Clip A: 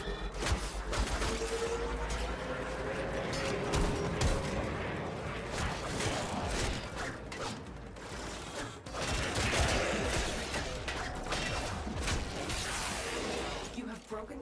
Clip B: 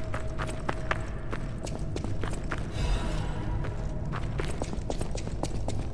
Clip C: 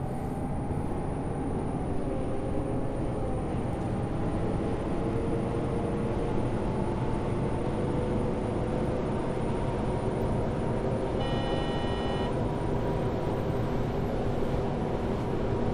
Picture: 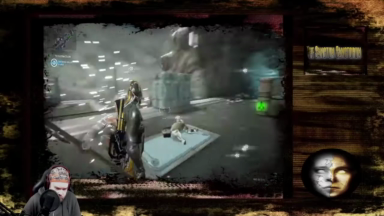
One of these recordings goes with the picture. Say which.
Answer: A